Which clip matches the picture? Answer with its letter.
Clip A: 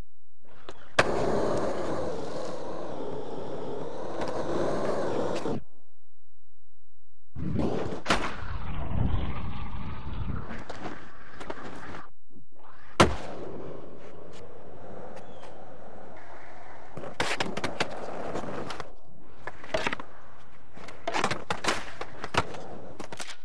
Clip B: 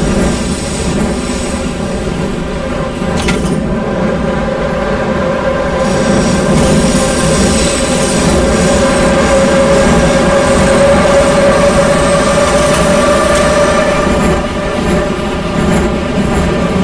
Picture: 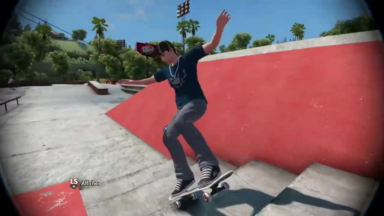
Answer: A